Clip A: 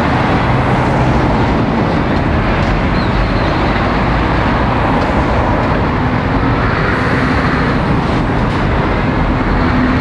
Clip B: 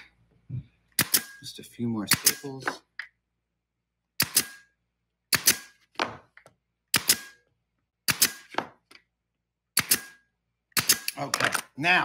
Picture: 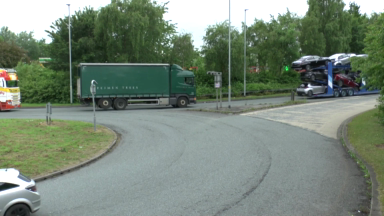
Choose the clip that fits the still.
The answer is A